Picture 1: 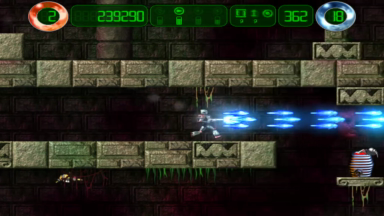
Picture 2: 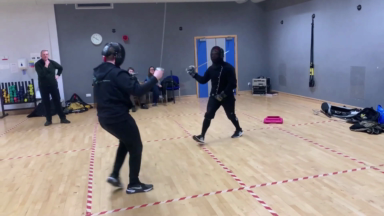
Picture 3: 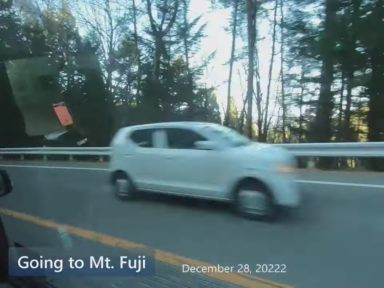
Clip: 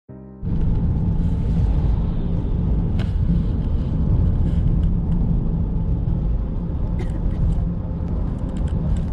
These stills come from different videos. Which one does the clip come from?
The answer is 3